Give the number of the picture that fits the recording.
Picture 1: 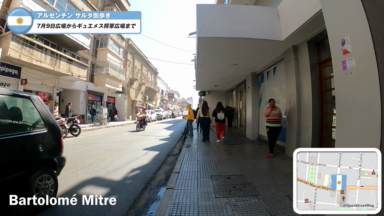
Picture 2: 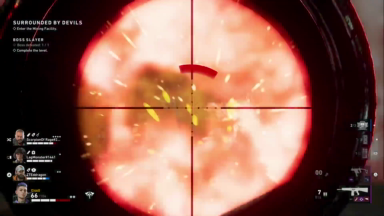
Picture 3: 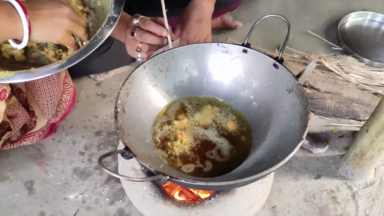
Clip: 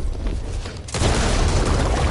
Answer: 2